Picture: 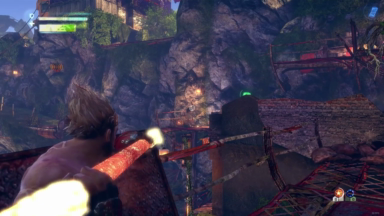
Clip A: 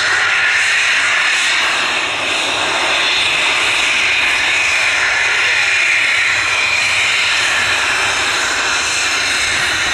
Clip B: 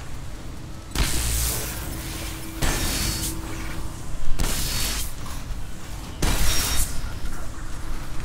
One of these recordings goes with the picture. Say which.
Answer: B